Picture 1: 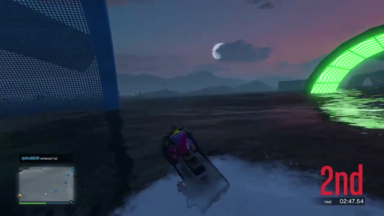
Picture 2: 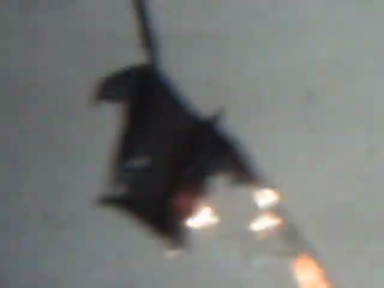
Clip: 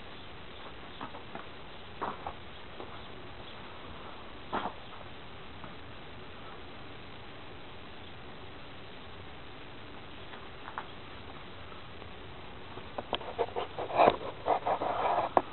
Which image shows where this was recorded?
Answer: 2